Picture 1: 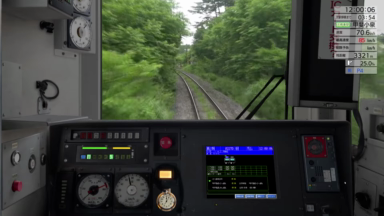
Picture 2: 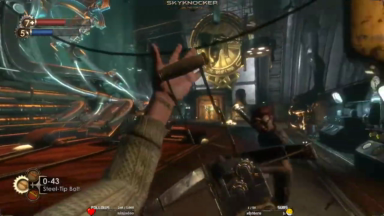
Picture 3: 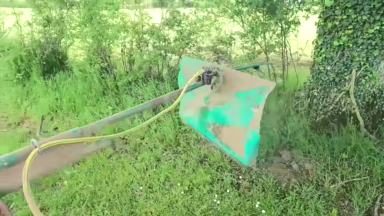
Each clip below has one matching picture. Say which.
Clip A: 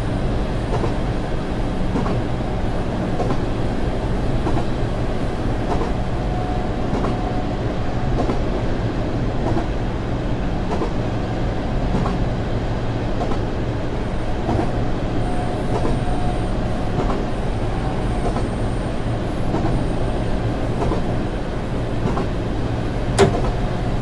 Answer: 1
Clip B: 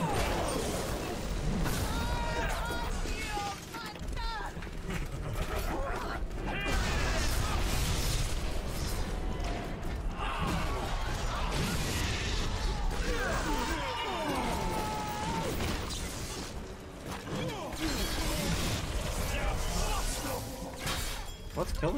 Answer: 2